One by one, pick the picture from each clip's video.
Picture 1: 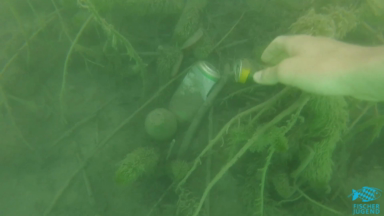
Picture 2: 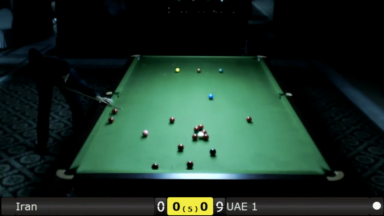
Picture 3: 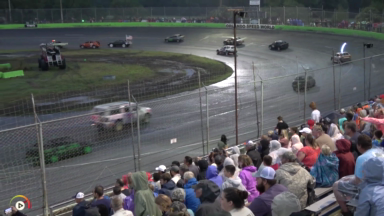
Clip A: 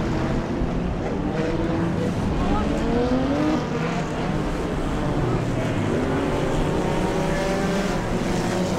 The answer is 3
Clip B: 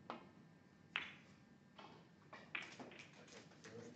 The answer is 2